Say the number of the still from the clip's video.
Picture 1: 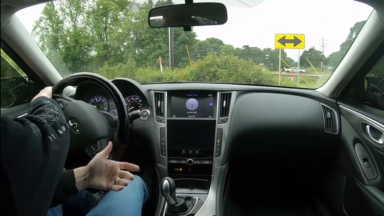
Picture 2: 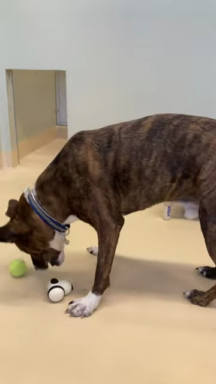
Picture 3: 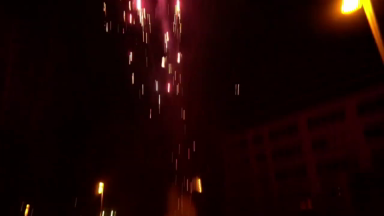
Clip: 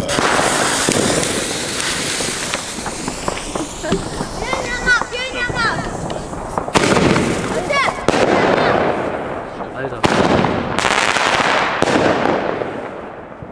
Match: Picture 3